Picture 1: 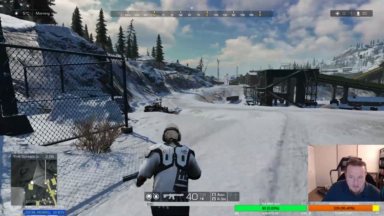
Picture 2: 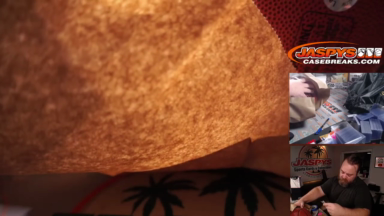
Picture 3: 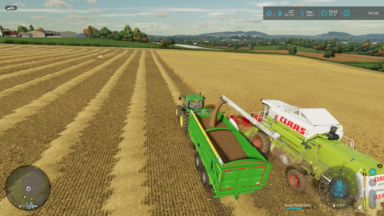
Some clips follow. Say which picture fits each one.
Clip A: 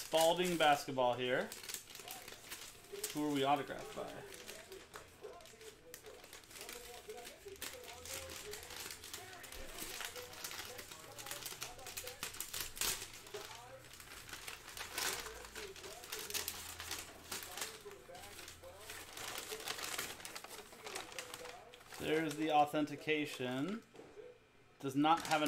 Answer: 2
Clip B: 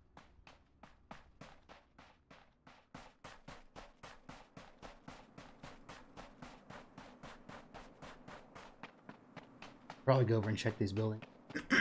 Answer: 1